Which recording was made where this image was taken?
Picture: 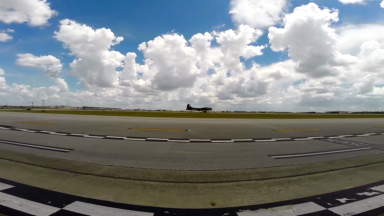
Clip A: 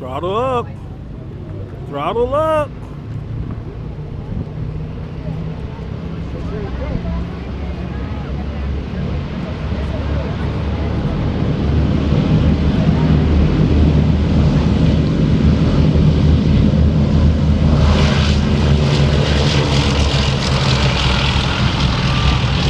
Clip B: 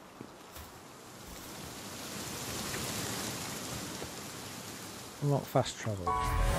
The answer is A